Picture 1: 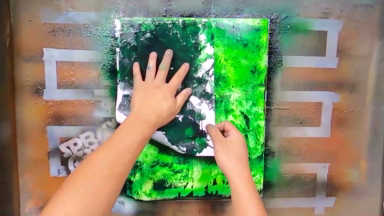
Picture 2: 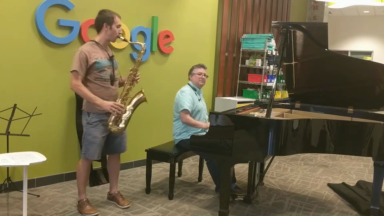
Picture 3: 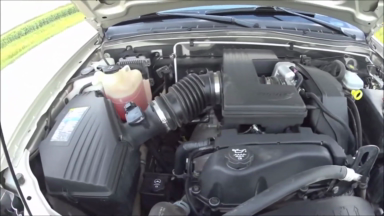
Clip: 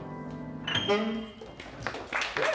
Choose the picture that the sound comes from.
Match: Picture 2